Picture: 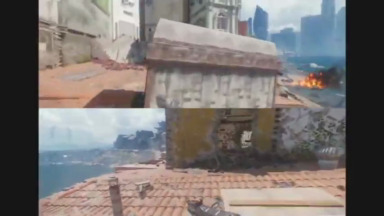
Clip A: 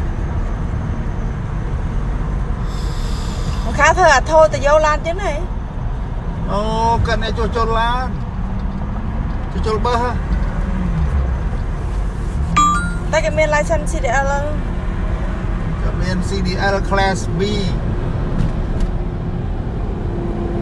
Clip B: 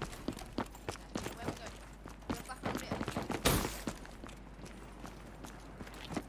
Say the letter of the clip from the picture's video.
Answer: B